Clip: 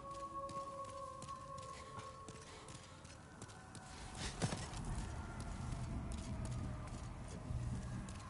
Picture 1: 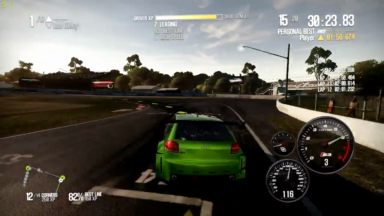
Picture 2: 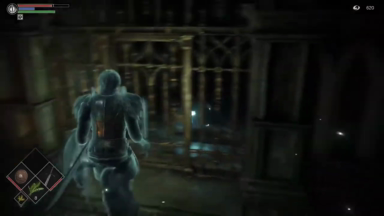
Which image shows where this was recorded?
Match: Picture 2